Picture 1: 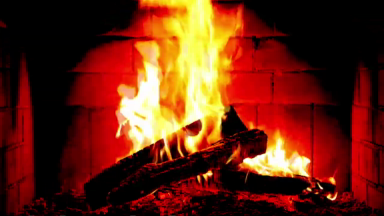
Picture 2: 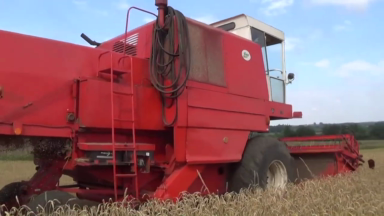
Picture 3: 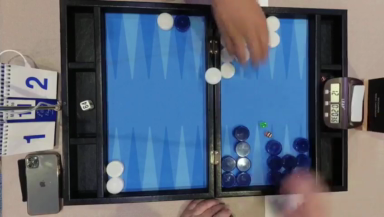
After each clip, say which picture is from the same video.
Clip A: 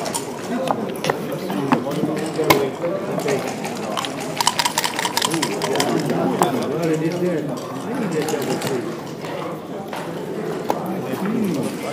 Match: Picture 3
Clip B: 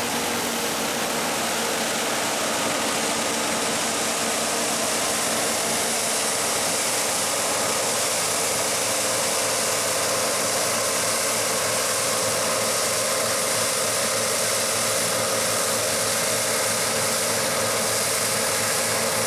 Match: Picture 2